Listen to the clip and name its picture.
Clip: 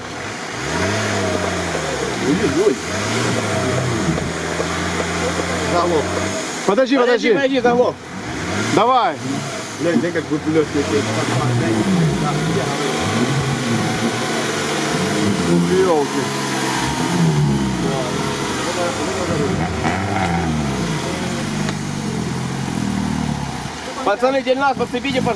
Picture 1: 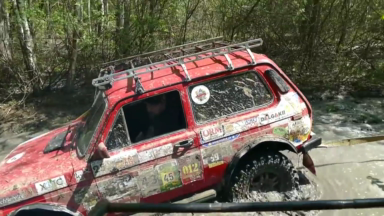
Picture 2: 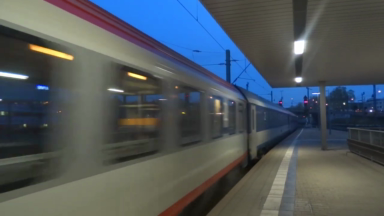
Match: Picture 1